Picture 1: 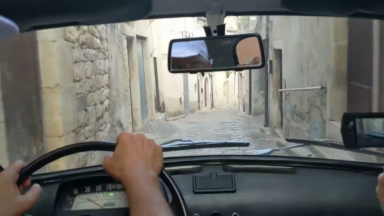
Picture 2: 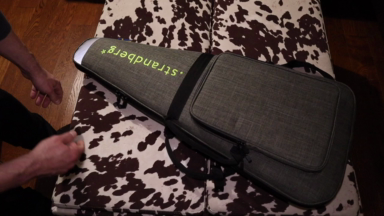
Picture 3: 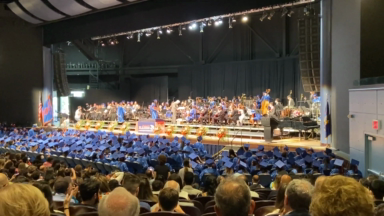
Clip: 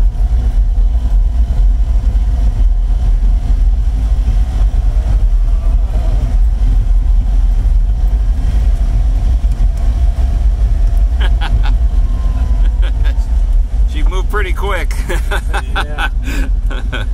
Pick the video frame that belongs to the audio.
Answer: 1